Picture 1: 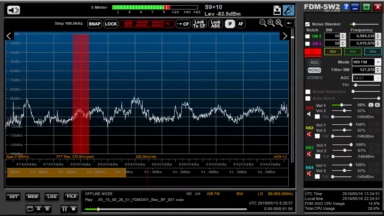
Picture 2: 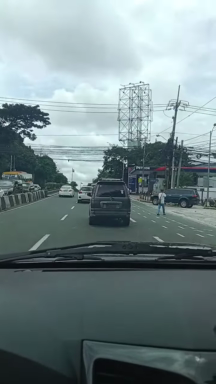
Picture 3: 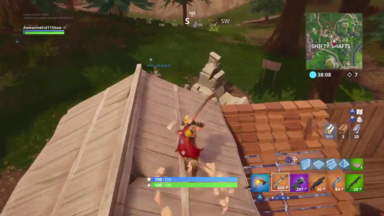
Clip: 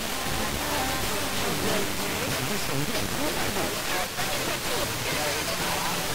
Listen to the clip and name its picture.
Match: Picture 1